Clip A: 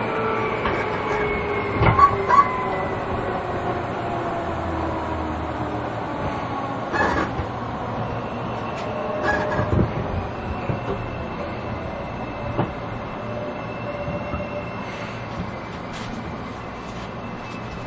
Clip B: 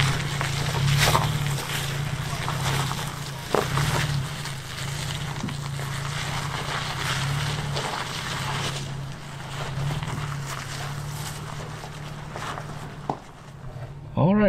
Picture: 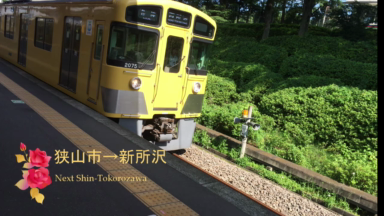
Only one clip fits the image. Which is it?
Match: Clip A